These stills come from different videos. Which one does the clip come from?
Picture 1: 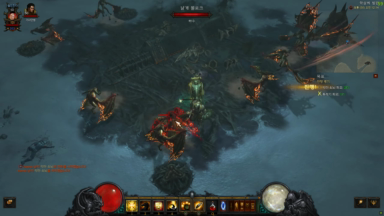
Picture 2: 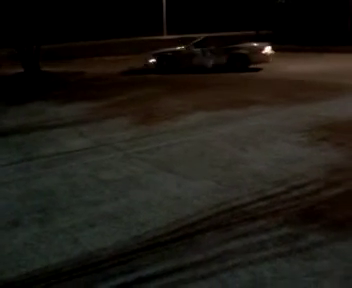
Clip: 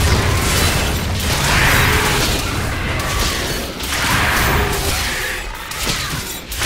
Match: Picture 1